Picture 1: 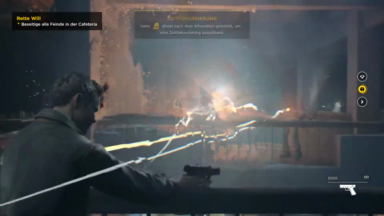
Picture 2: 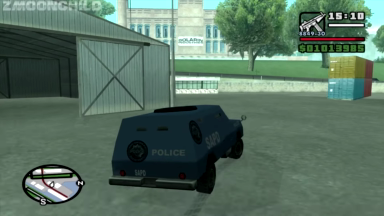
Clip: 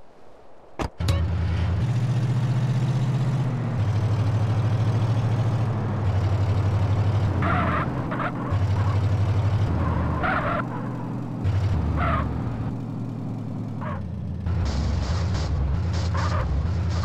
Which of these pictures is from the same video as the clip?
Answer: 2